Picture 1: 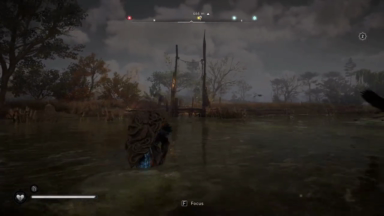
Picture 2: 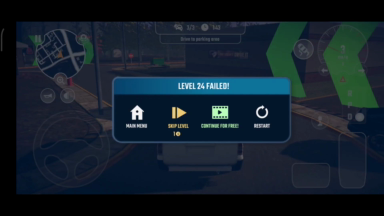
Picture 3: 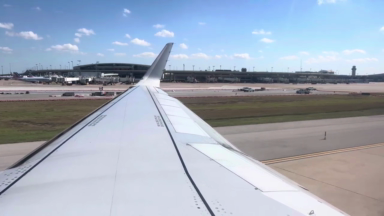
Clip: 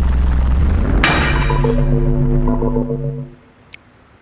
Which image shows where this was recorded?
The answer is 2